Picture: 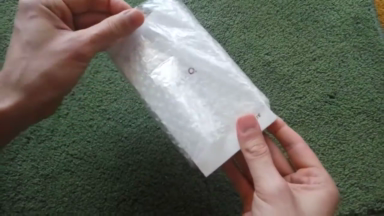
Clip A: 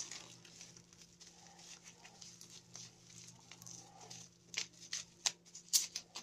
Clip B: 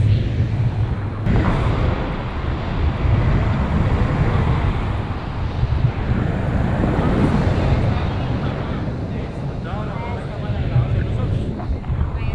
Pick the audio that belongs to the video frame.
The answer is A